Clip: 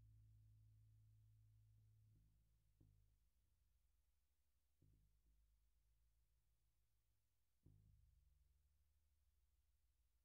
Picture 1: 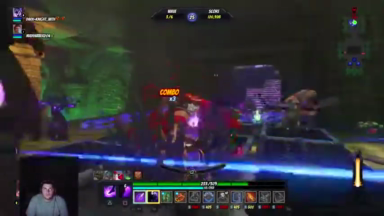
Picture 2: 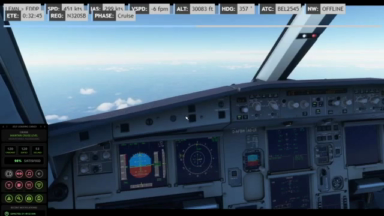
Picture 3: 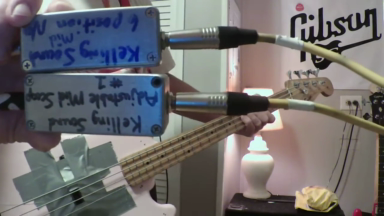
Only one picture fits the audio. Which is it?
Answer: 3